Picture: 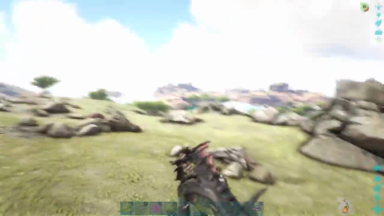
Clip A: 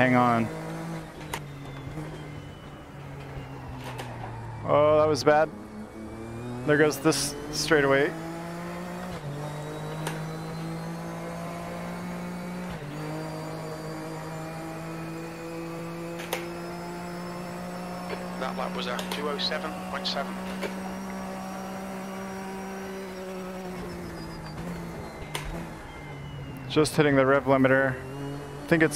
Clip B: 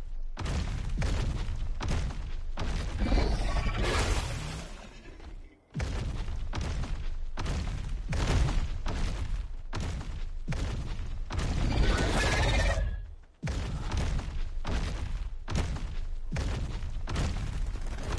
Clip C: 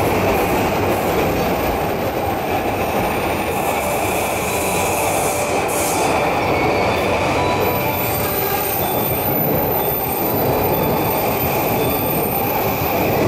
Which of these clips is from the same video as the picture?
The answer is B